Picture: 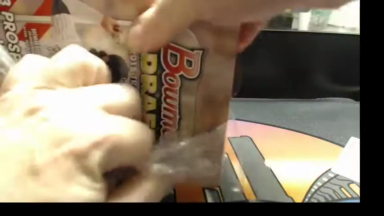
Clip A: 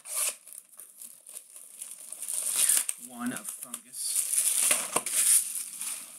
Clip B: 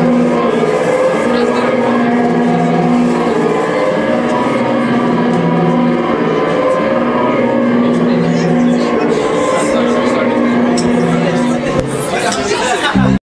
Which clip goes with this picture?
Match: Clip A